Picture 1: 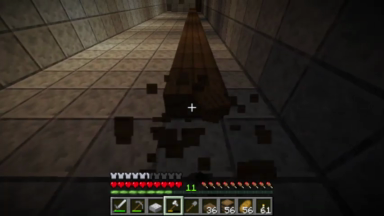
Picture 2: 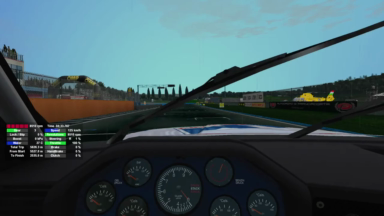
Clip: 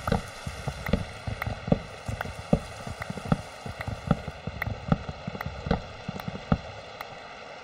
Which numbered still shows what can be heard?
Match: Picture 1